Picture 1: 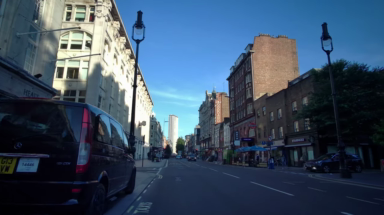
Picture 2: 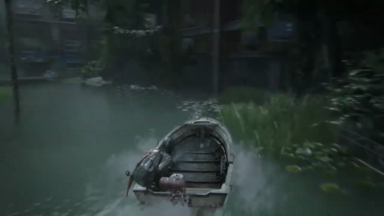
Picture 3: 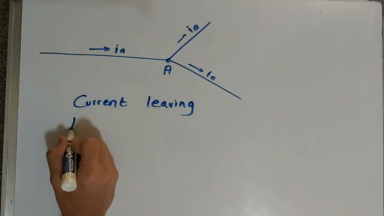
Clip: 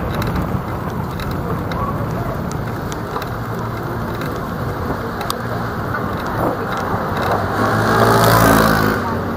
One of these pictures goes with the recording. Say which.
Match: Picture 1